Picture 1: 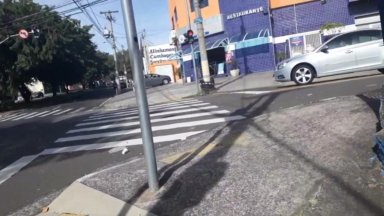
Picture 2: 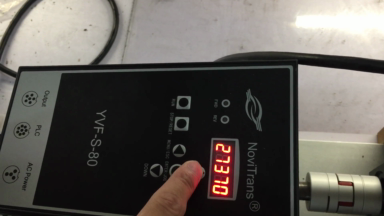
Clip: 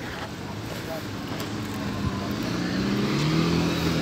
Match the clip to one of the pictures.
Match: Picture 1